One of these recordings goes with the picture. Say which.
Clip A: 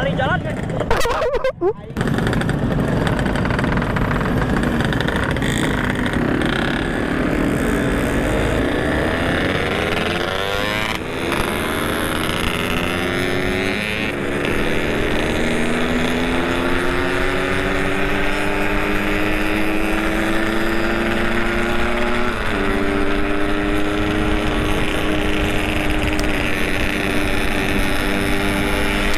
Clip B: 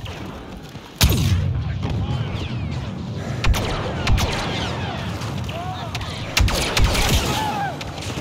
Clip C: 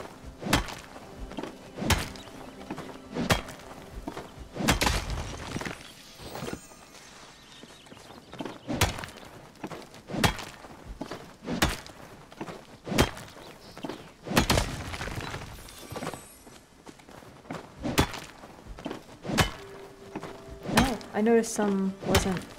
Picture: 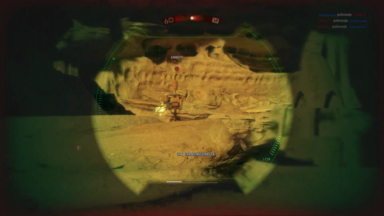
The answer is B